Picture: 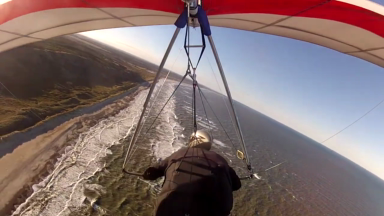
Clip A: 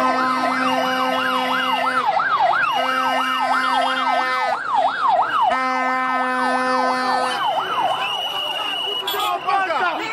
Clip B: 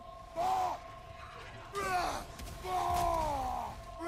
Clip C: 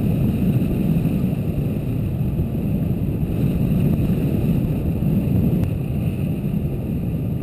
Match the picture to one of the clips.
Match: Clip C